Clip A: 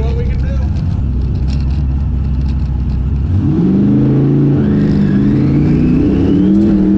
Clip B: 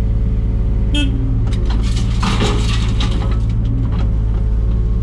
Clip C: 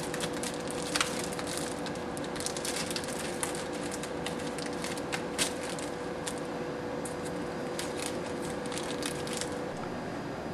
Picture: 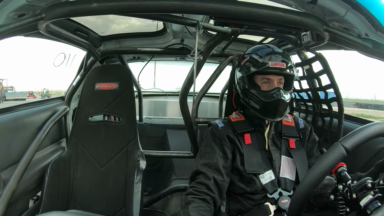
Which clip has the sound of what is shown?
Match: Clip A